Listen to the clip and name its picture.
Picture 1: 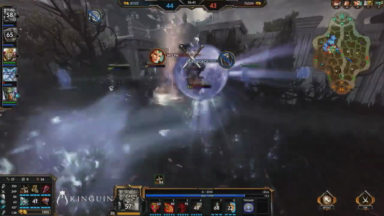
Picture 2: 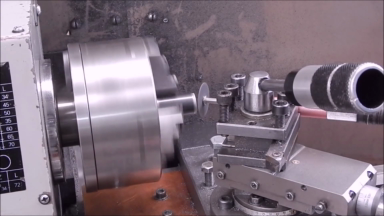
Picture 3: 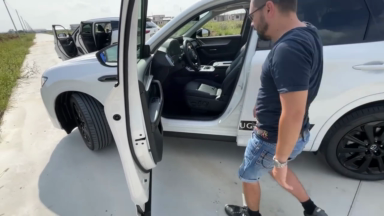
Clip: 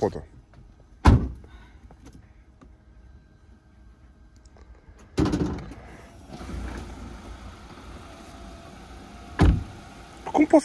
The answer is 3